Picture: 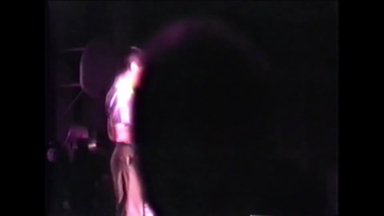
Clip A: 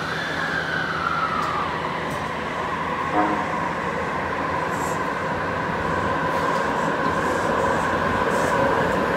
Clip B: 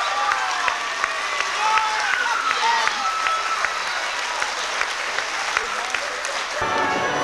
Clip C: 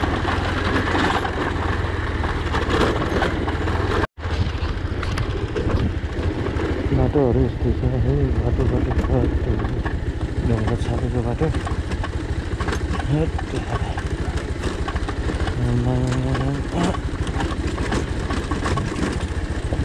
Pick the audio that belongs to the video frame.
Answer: B